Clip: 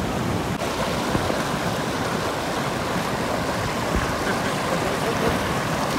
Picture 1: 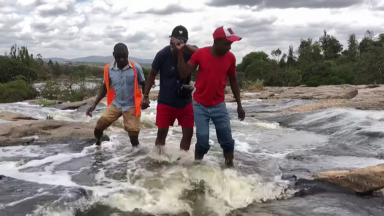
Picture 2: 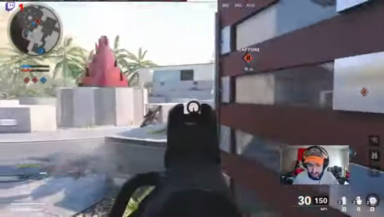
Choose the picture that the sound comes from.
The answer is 1